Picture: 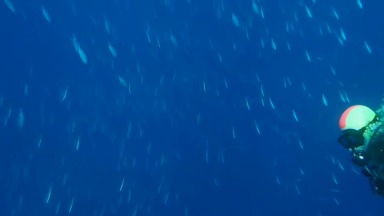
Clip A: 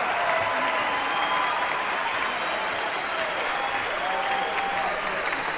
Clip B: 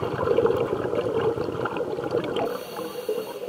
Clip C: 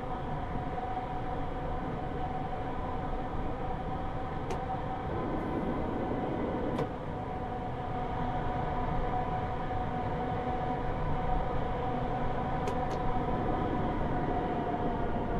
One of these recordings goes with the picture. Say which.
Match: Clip B